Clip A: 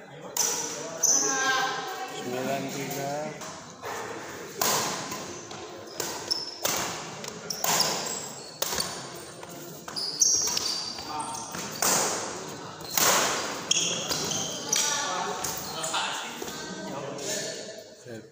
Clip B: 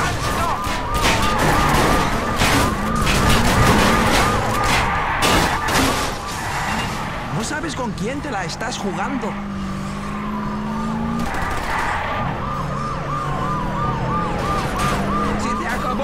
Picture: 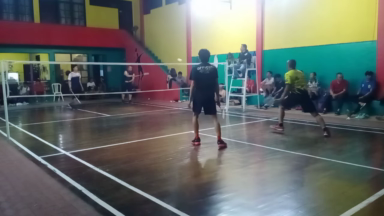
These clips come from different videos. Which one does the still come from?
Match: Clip A